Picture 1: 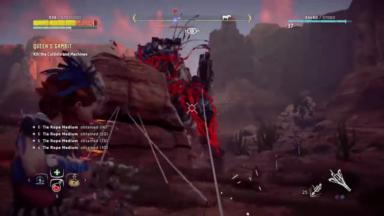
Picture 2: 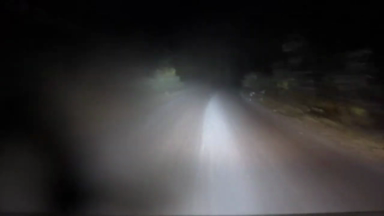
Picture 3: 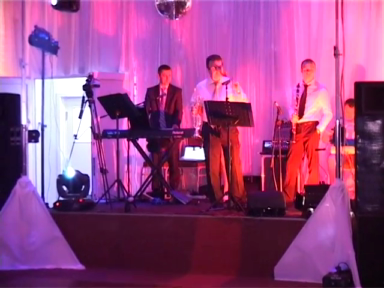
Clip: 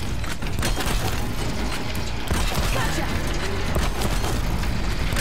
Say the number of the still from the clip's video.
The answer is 1